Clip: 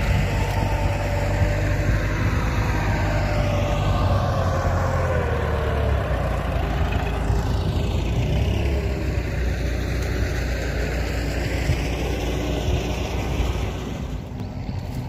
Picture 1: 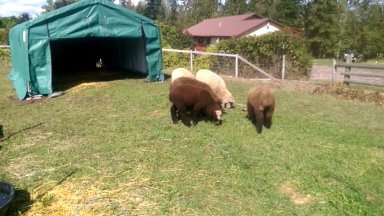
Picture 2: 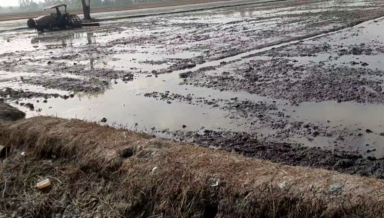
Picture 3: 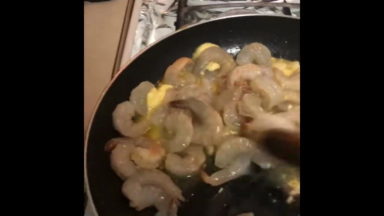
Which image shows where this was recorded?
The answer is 2